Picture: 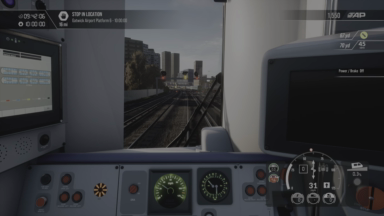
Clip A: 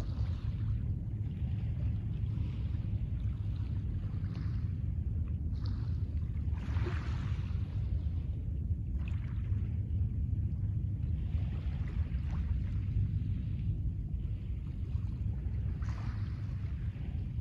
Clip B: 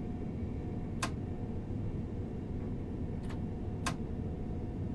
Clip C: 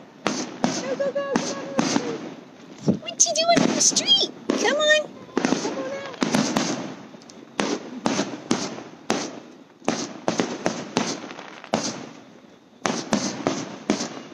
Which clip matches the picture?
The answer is B